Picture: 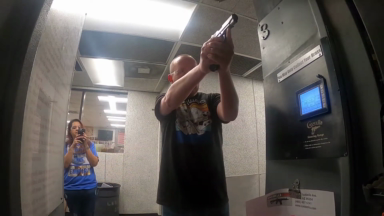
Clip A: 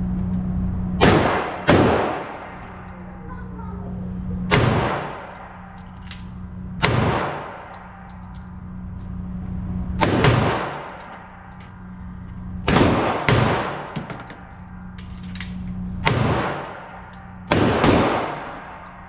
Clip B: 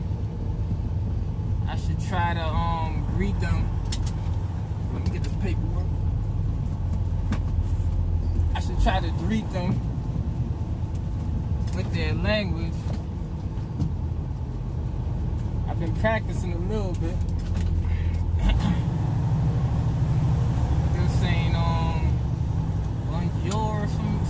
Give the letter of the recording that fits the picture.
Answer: A